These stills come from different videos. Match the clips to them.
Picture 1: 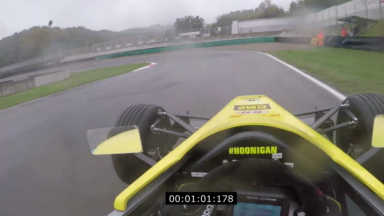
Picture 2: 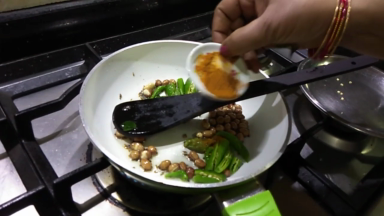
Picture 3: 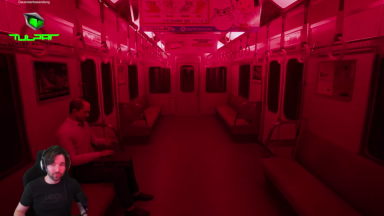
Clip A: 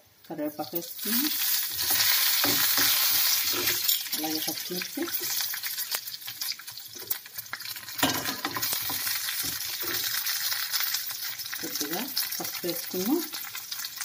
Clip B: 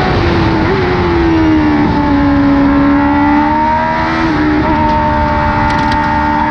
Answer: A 2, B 1